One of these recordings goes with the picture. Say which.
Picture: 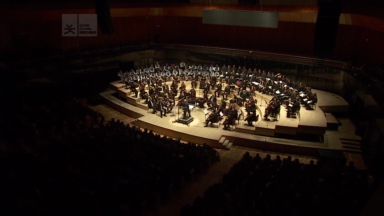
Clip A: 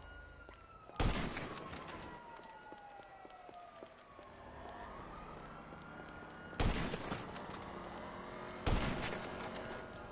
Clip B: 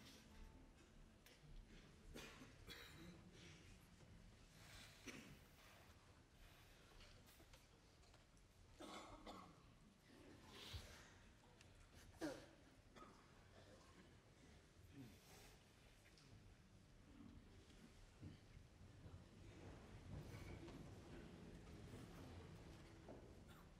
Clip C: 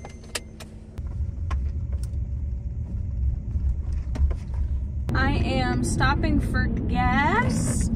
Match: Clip B